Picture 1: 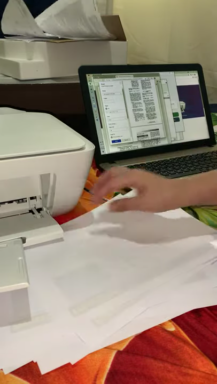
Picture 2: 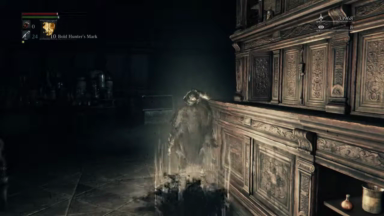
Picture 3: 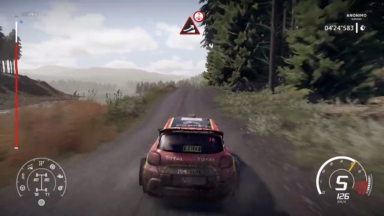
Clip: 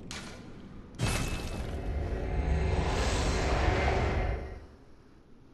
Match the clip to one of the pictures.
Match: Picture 2